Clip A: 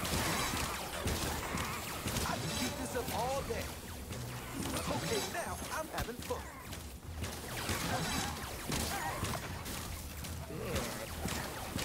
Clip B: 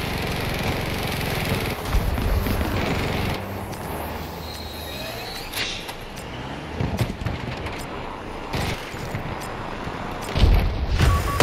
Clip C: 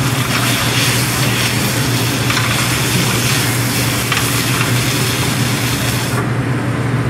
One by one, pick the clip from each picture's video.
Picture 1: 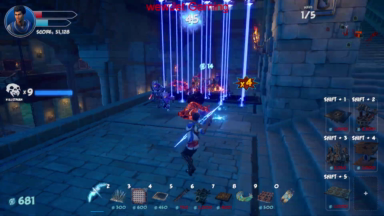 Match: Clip A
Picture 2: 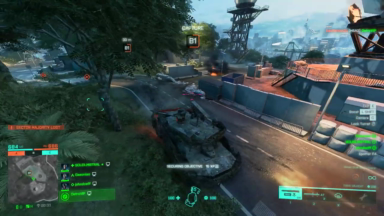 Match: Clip B